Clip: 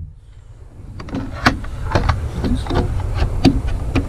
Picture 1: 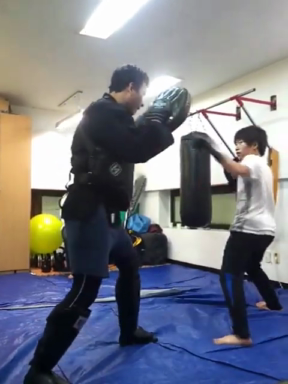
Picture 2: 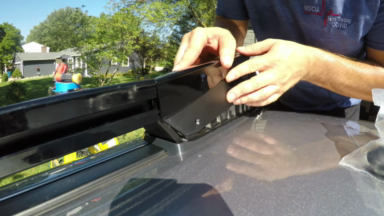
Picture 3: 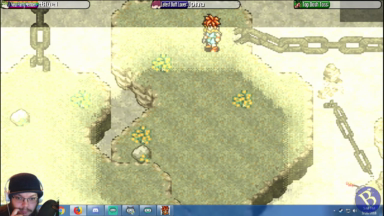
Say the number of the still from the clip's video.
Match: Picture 2